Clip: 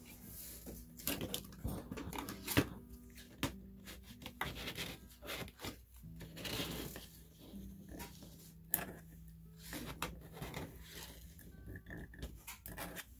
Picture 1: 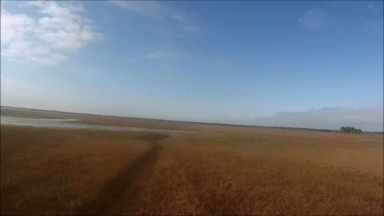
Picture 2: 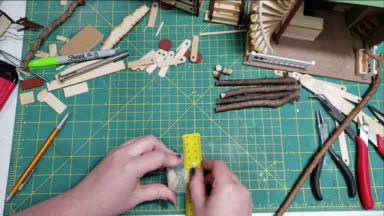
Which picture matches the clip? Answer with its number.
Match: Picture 2